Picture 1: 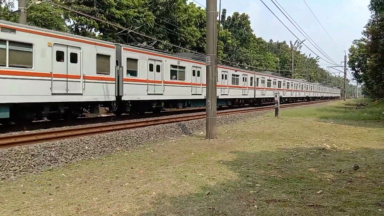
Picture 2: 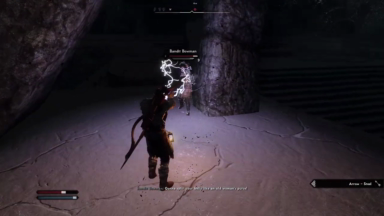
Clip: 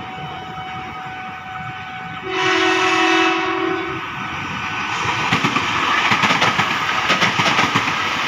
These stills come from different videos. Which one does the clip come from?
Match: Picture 1